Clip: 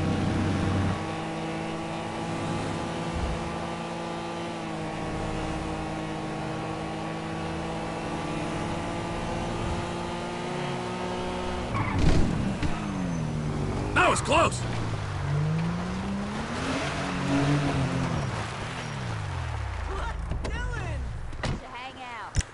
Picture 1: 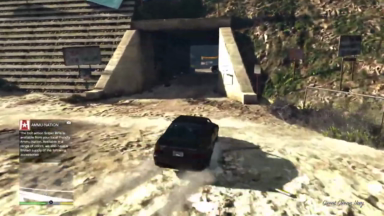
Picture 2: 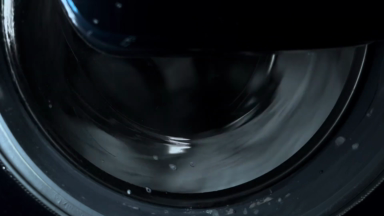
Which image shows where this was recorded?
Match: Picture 1